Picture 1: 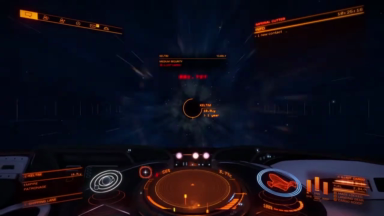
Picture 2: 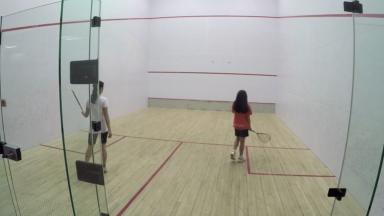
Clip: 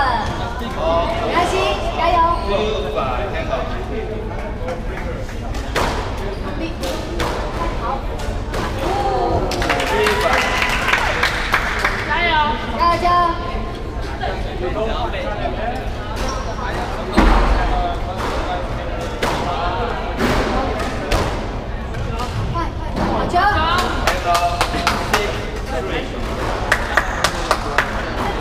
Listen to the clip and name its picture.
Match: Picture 2